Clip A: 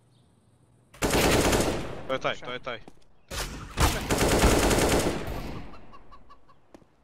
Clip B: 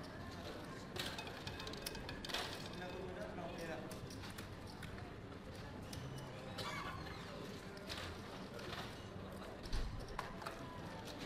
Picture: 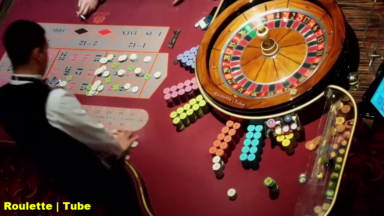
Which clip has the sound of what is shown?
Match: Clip B